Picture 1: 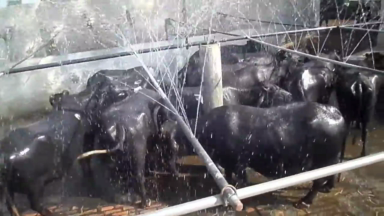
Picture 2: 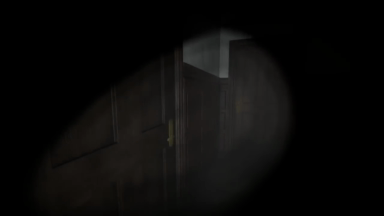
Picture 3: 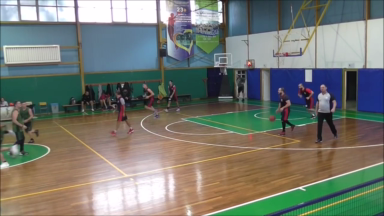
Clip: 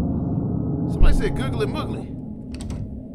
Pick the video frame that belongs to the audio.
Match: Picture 2